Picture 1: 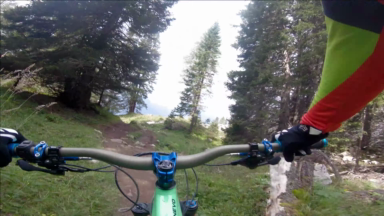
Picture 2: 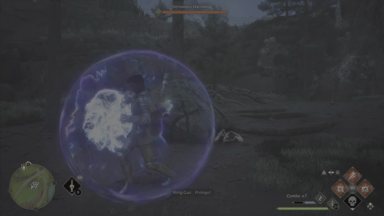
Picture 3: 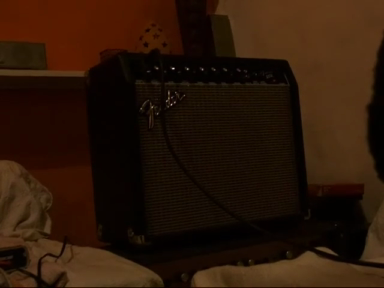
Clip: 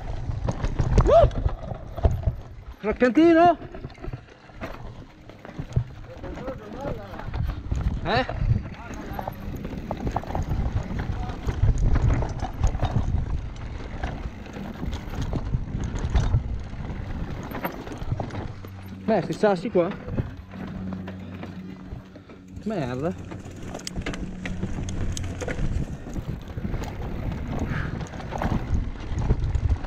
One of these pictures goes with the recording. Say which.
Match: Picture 1